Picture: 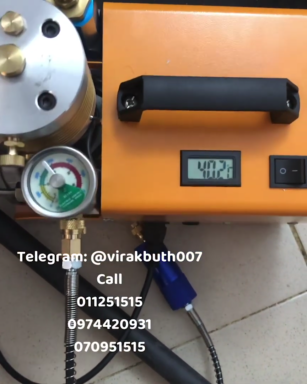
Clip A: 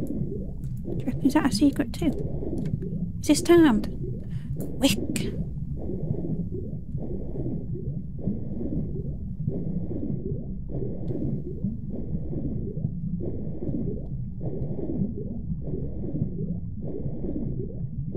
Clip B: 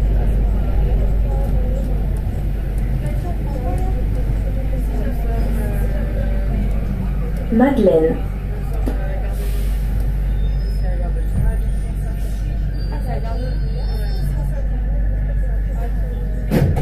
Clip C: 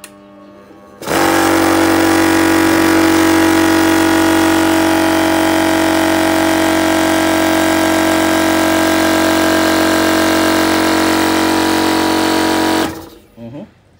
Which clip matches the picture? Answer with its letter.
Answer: C